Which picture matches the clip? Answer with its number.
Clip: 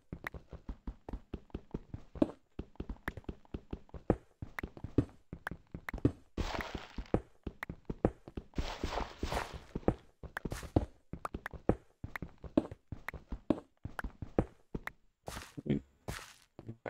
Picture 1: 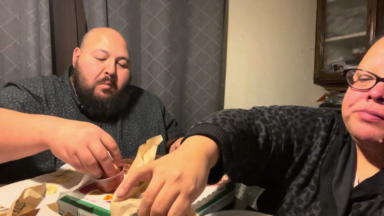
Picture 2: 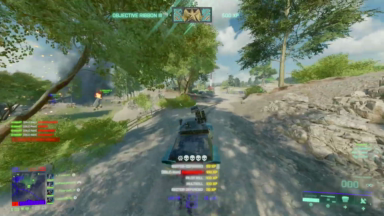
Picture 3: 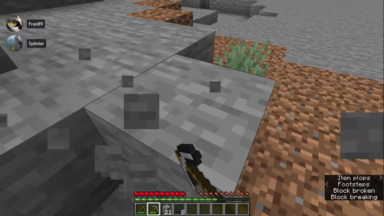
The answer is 3